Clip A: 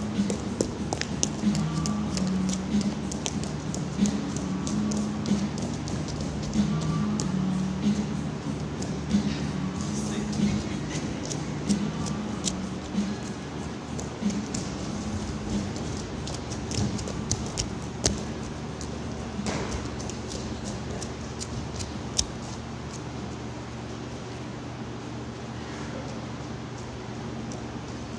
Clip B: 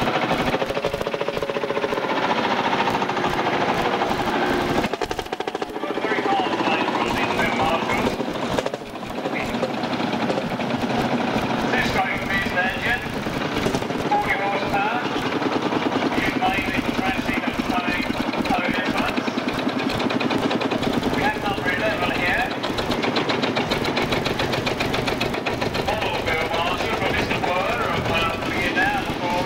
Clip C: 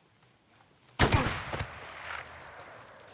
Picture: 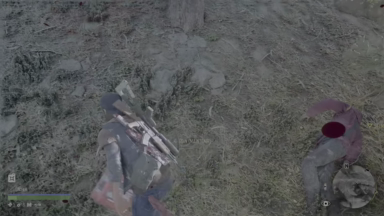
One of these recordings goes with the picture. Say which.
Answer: C